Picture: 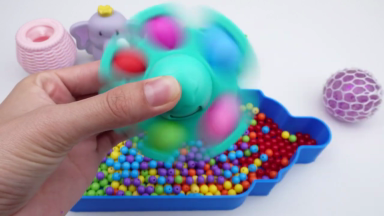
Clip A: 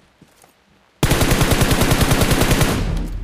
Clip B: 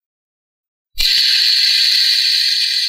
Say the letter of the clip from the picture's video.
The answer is B